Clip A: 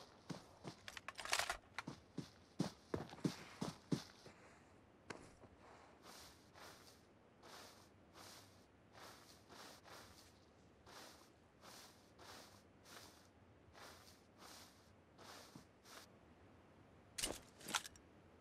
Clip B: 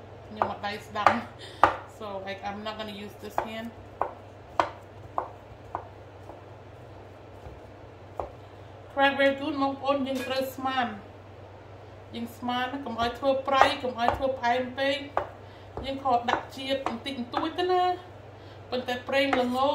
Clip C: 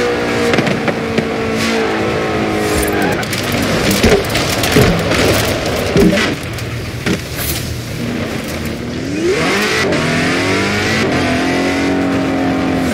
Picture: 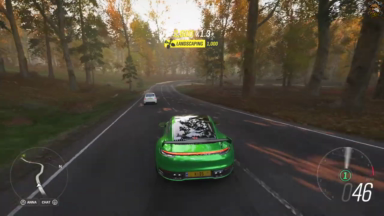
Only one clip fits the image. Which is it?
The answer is C